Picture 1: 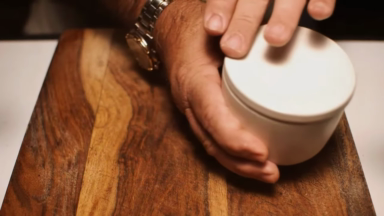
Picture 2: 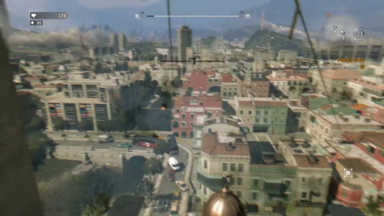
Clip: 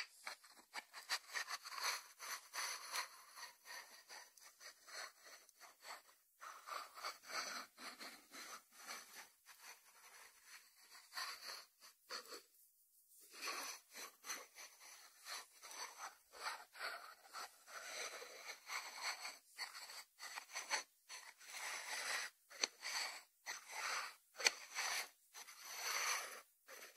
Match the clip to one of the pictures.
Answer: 1